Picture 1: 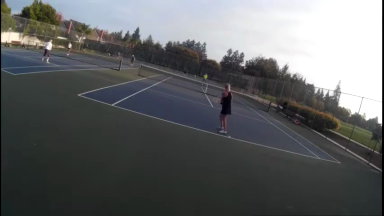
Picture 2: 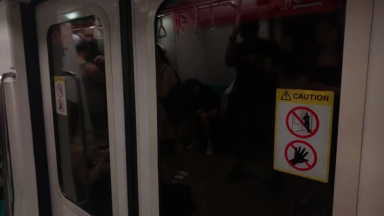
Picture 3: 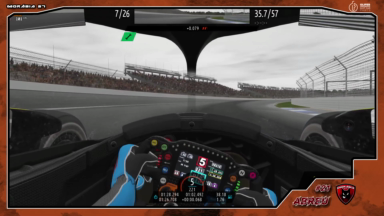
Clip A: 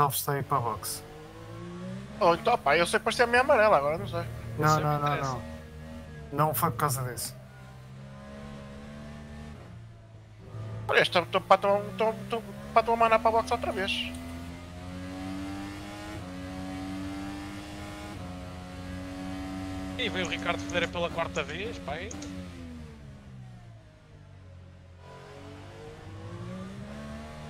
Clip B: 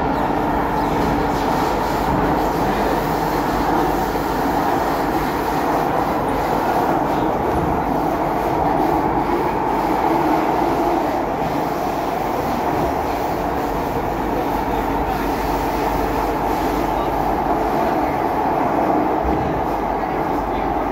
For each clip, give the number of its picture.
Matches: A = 3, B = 2